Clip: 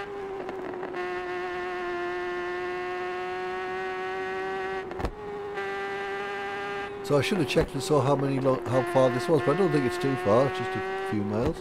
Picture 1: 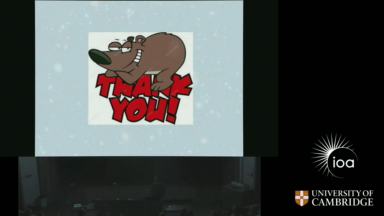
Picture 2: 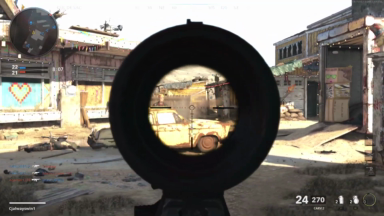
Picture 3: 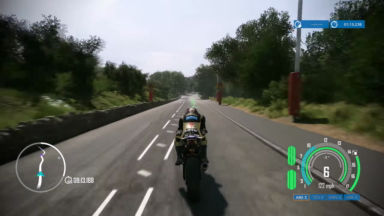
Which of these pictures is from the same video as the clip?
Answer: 3